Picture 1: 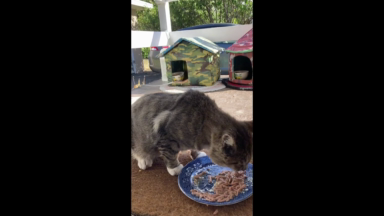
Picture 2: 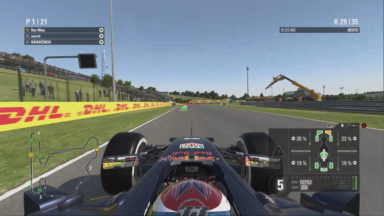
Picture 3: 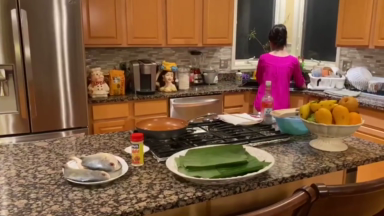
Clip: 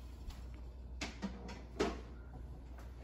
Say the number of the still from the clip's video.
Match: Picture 3